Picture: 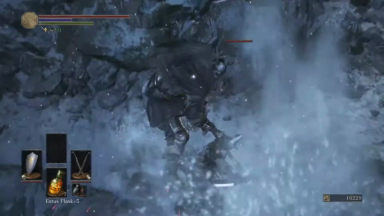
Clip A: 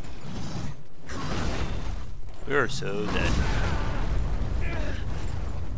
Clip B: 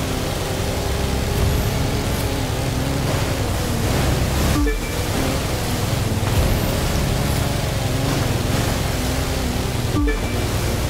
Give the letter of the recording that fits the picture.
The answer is A